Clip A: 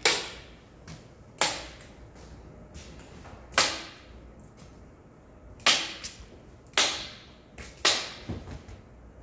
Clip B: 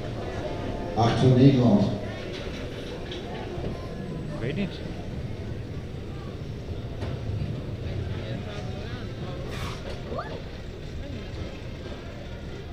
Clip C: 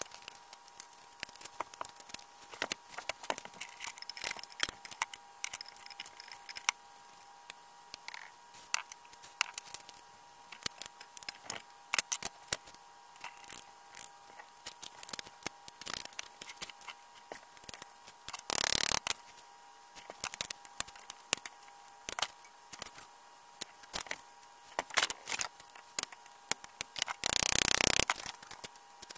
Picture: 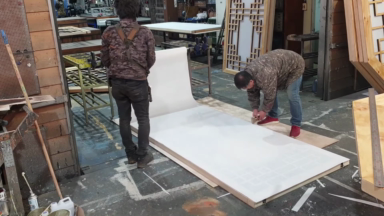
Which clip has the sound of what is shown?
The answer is A